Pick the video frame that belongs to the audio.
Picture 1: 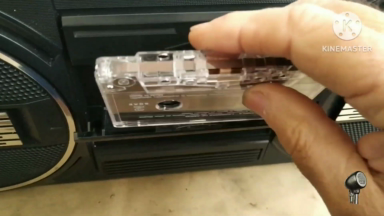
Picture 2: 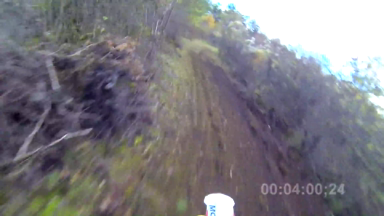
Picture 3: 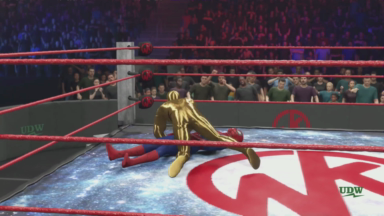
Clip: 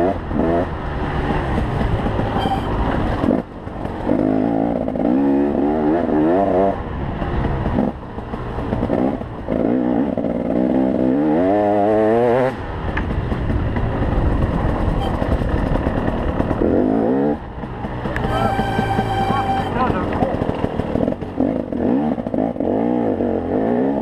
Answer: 2